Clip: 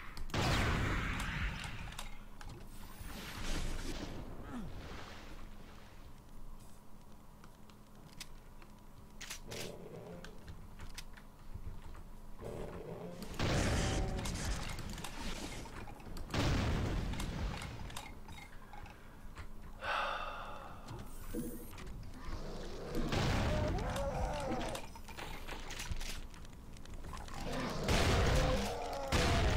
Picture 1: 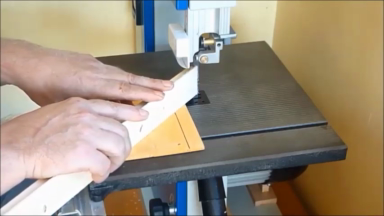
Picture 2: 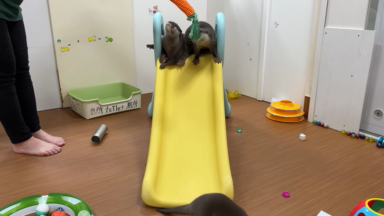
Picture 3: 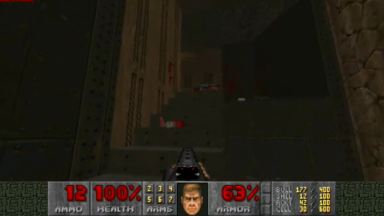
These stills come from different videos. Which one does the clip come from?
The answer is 3